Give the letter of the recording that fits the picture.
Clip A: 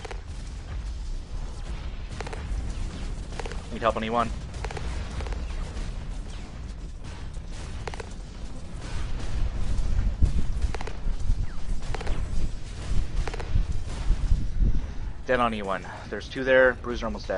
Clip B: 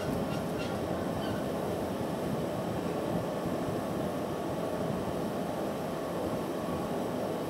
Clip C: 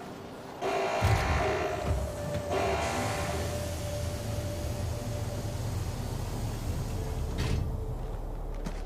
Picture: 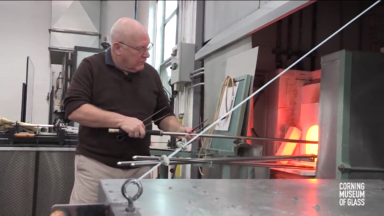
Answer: B